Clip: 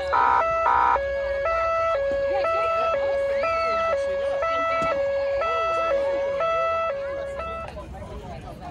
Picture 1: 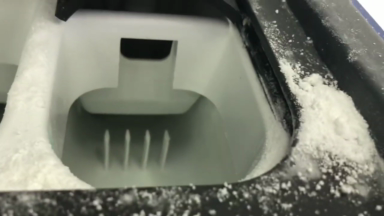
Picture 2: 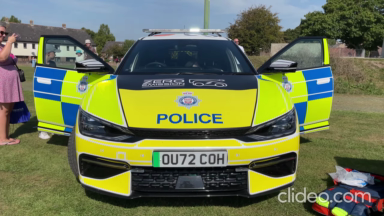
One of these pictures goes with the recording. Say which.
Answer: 2